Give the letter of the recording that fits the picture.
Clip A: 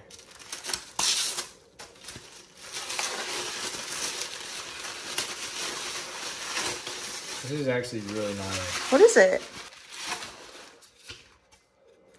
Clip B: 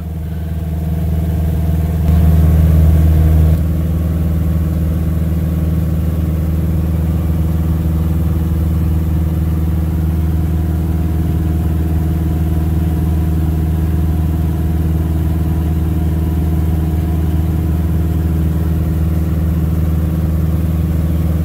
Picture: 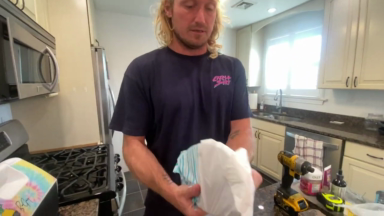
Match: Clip A